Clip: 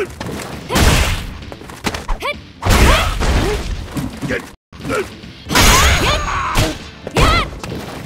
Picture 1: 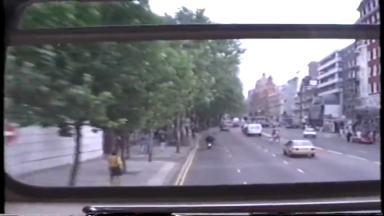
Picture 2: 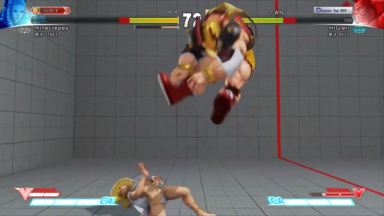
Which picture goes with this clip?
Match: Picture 2